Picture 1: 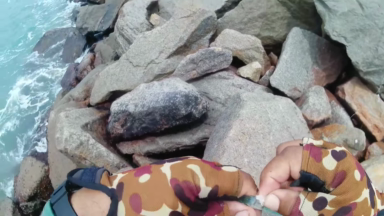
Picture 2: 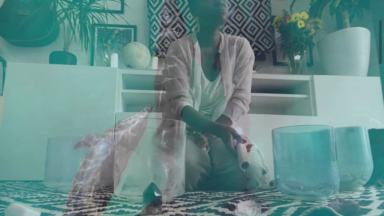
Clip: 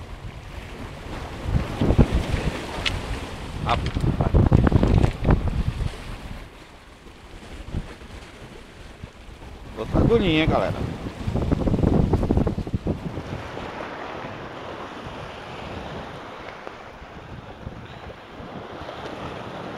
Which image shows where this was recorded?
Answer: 1